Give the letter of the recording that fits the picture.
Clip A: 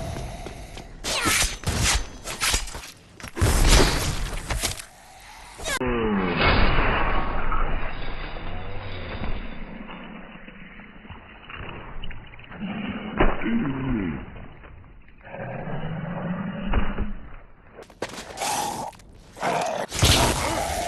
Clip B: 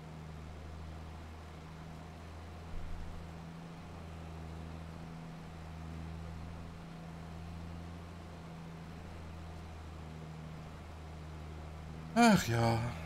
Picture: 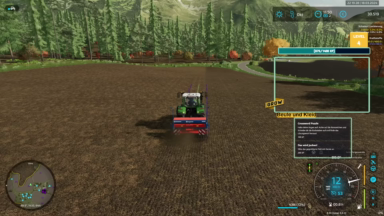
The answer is B